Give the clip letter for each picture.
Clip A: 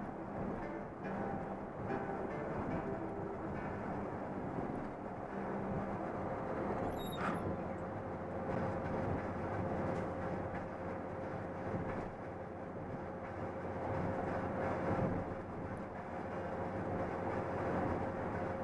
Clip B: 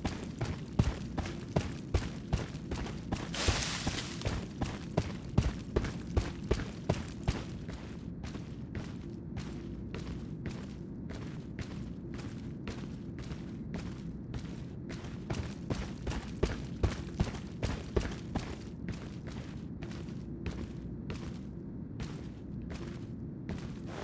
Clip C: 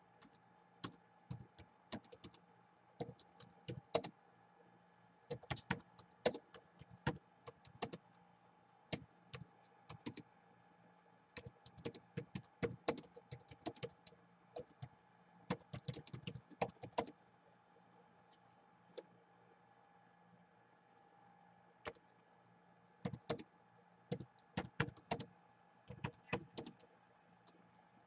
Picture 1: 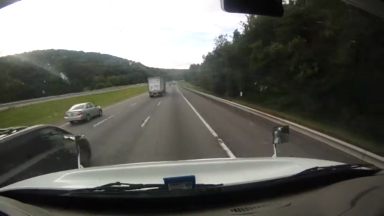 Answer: A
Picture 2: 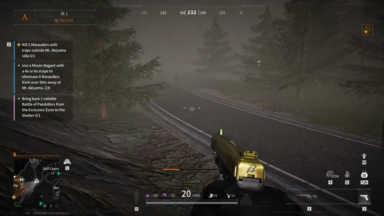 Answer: B